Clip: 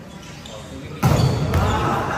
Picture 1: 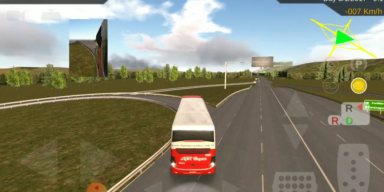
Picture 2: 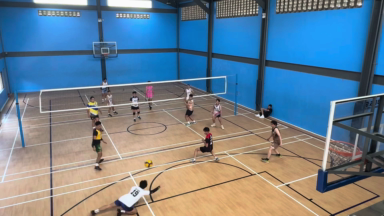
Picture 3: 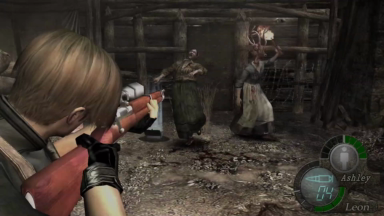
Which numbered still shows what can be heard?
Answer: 2